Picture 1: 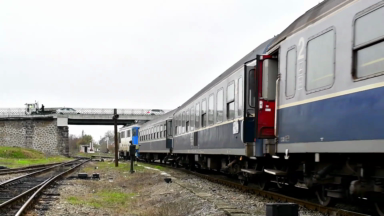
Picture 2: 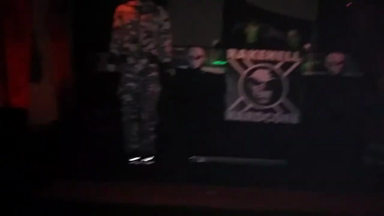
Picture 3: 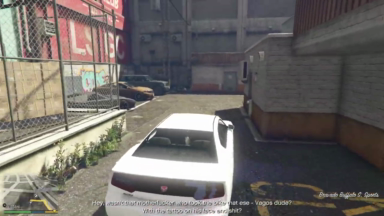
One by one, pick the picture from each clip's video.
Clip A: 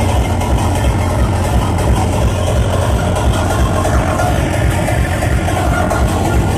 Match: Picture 2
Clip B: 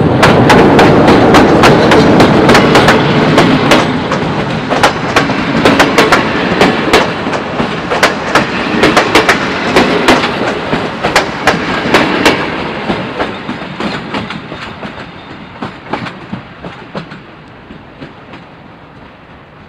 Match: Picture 1